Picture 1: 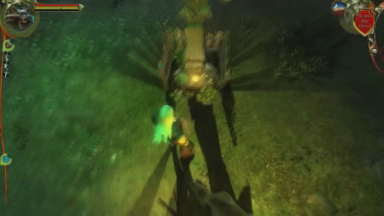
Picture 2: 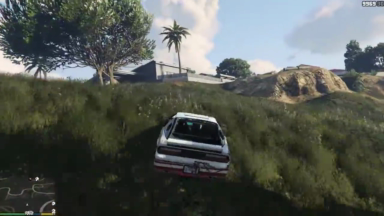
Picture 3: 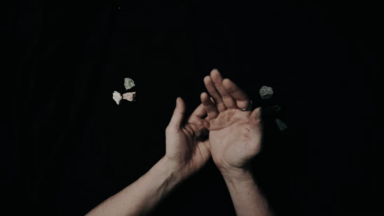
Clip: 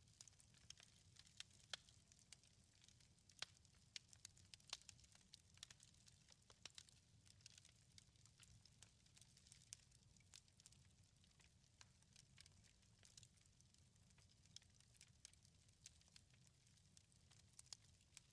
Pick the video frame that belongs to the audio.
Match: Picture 3